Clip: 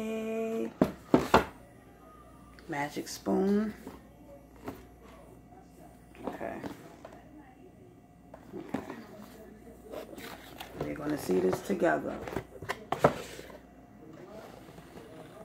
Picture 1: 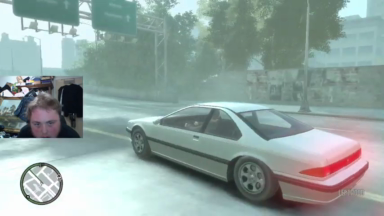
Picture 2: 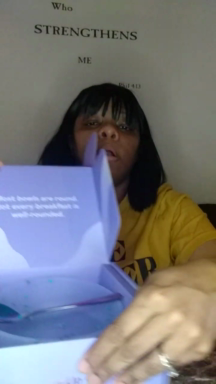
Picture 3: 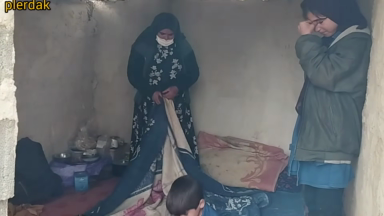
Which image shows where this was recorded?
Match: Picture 2